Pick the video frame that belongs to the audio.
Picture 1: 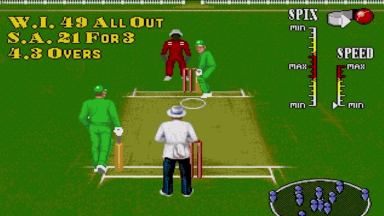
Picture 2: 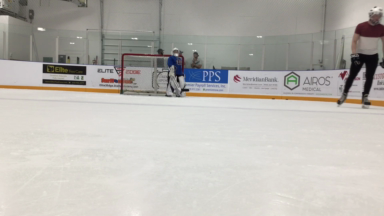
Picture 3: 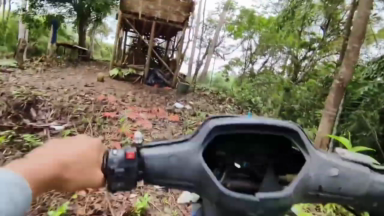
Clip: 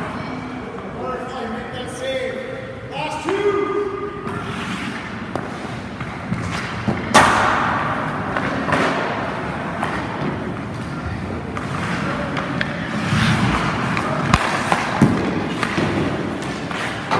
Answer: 2